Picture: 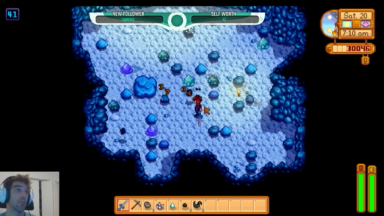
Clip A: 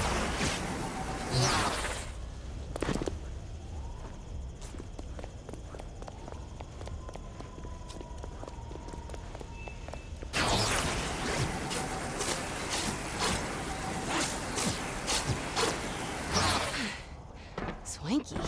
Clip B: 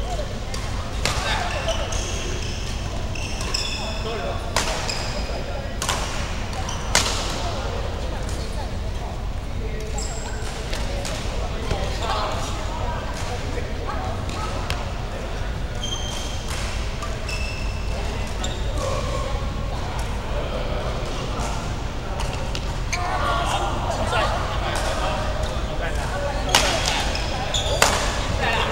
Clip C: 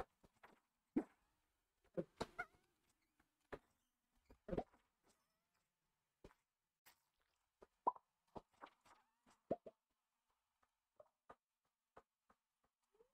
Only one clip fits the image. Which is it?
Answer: C